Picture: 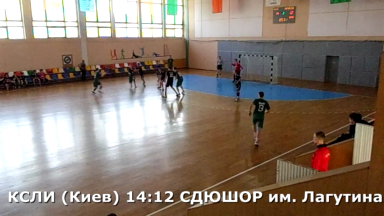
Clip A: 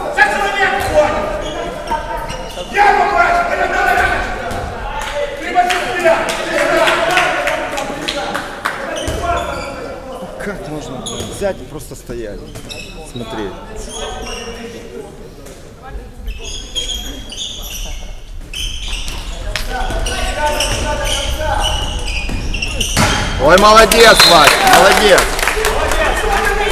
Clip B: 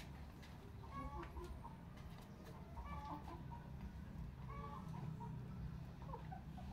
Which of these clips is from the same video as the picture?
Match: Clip A